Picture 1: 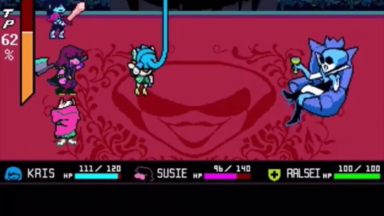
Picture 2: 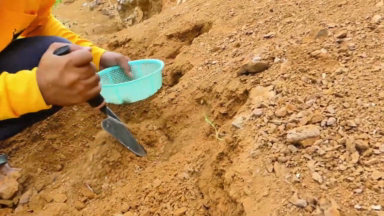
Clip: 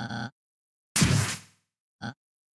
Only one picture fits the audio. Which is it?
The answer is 1